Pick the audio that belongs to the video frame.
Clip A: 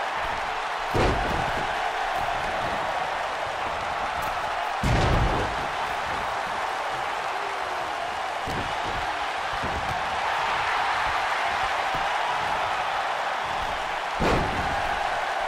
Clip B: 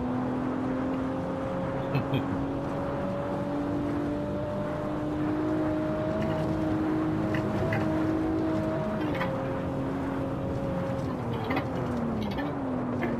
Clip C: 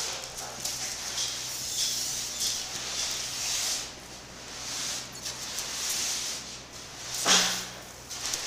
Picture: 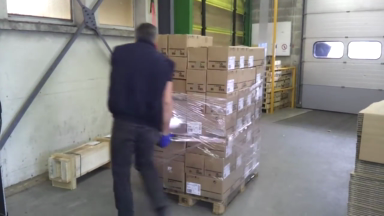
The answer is C